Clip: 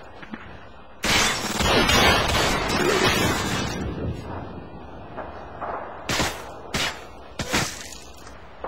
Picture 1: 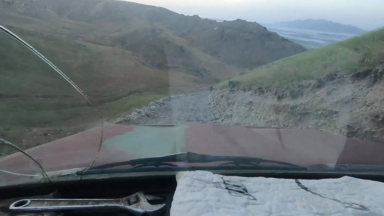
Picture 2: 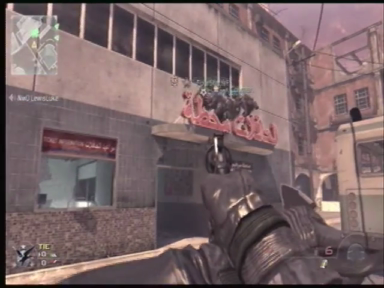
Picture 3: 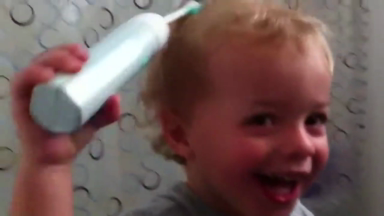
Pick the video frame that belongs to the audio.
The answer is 2